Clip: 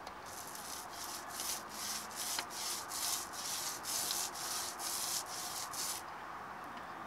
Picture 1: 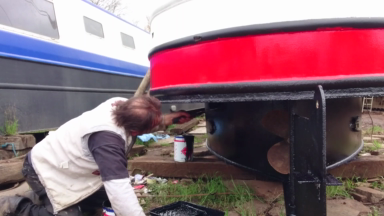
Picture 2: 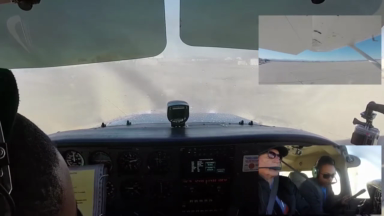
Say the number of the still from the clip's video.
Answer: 1